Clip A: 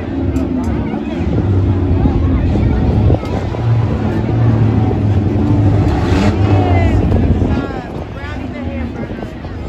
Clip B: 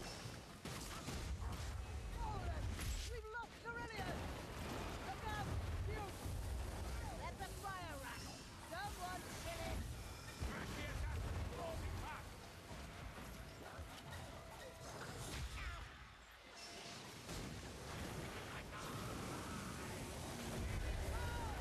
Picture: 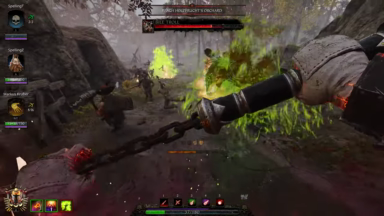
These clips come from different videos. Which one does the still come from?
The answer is B